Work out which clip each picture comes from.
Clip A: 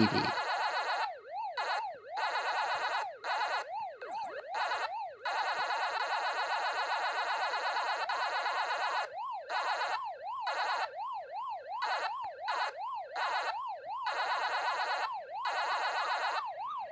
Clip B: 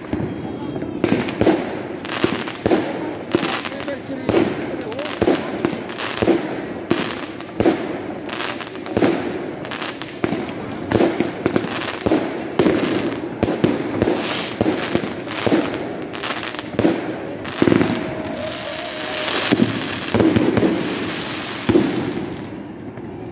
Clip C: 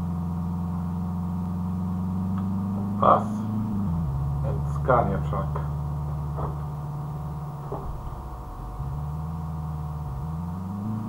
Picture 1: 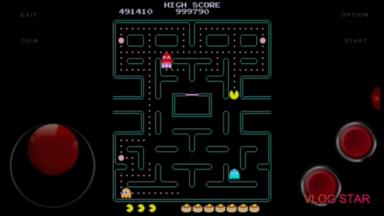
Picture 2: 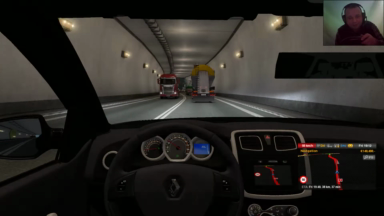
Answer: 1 A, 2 C